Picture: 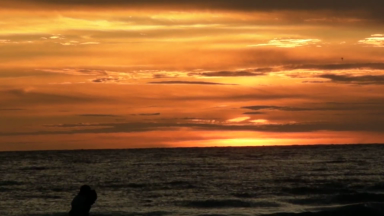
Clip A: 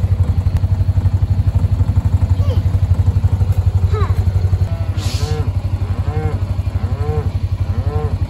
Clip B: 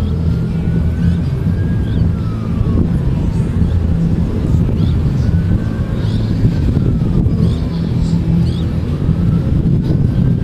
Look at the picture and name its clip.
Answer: B